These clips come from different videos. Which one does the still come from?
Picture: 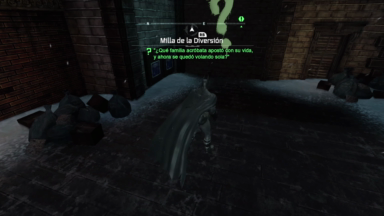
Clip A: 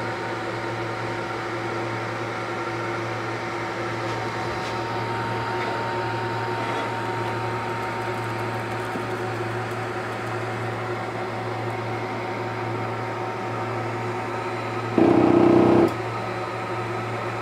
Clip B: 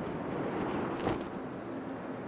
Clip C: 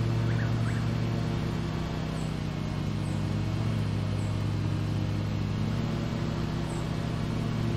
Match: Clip B